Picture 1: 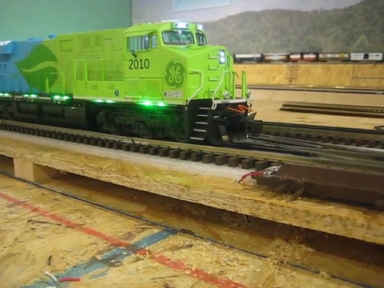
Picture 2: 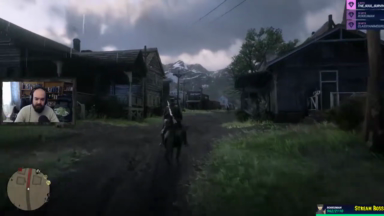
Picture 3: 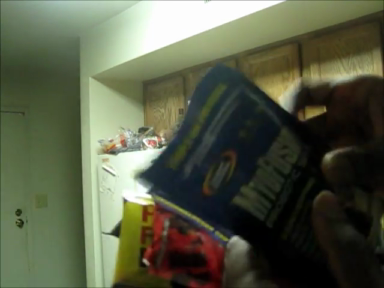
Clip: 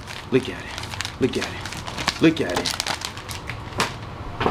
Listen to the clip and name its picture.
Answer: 3